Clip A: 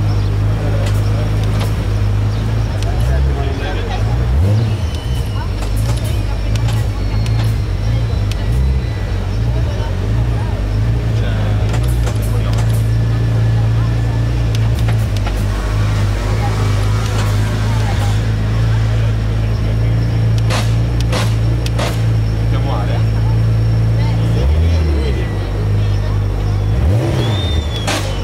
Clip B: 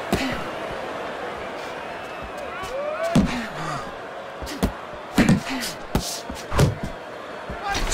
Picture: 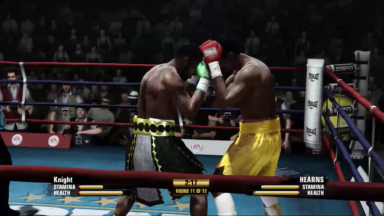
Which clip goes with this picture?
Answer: B